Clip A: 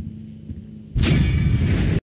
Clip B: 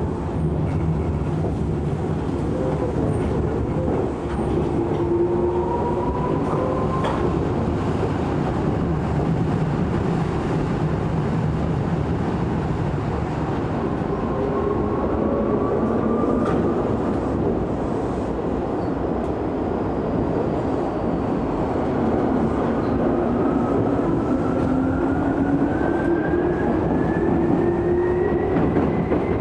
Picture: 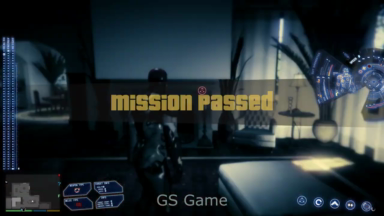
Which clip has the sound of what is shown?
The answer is A